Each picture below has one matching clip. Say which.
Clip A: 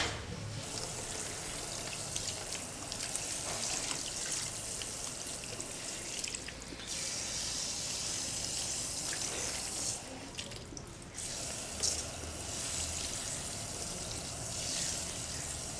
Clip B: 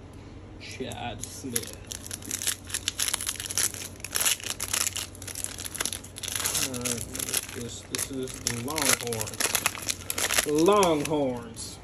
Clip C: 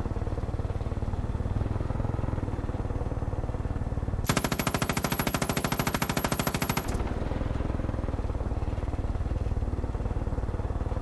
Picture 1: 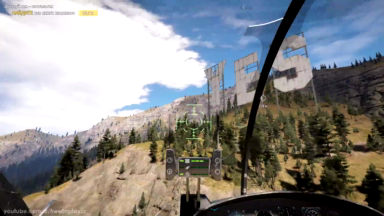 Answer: C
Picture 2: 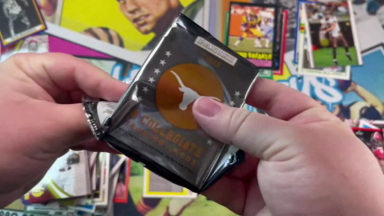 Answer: B